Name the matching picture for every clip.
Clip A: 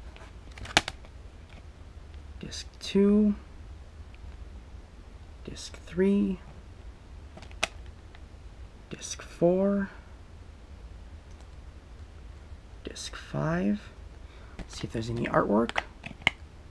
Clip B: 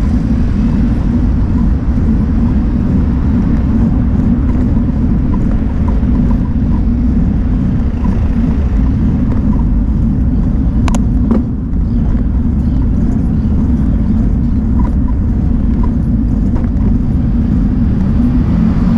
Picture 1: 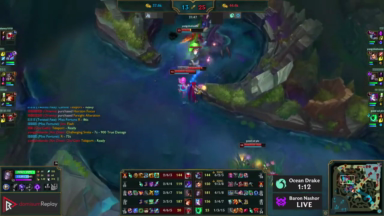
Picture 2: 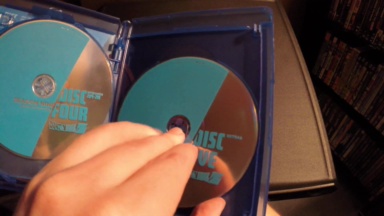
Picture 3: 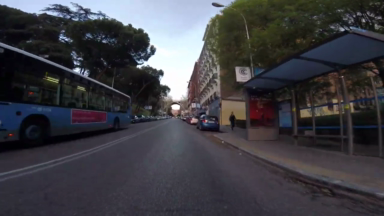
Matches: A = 2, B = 3